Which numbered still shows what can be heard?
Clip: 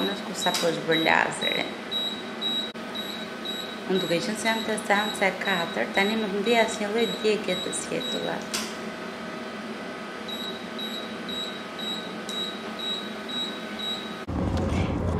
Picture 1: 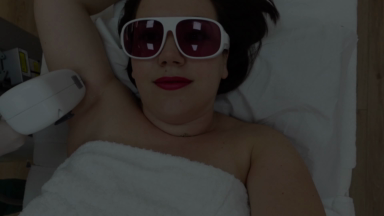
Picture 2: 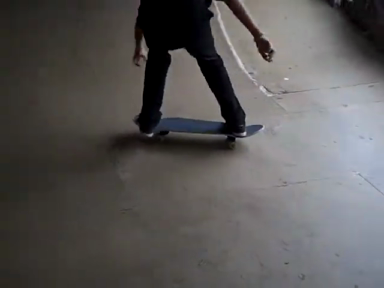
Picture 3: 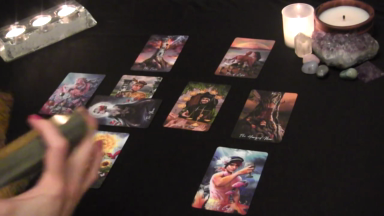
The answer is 1